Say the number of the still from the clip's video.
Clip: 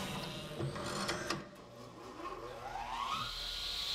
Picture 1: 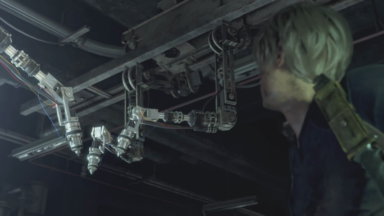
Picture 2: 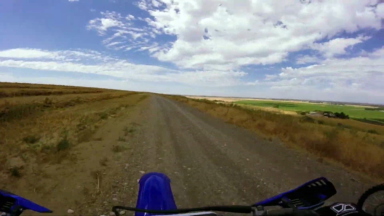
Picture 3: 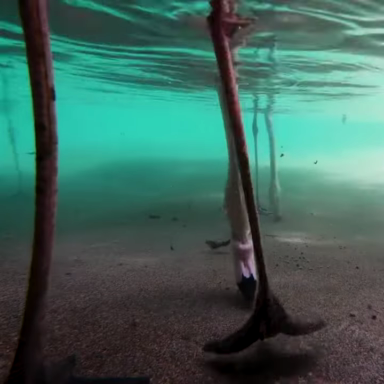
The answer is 1